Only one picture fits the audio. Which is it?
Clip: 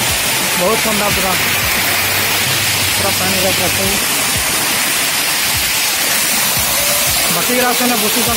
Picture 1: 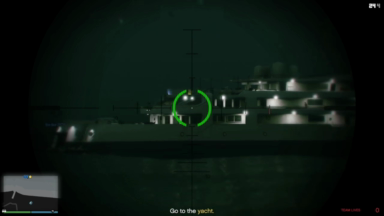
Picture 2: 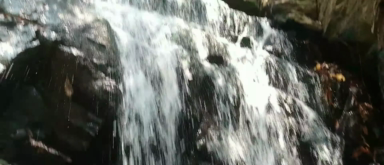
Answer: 2